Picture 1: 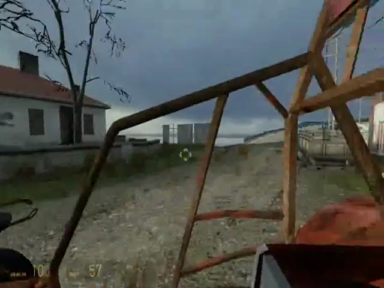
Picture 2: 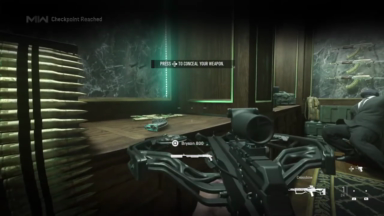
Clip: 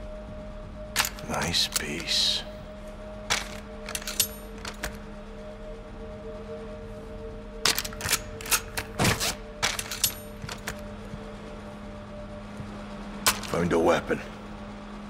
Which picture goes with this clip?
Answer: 2